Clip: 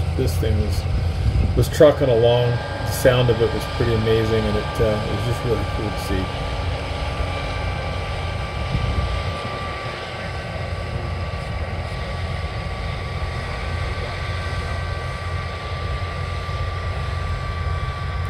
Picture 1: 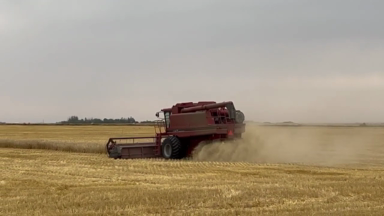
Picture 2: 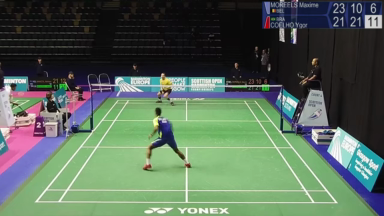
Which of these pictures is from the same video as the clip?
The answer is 1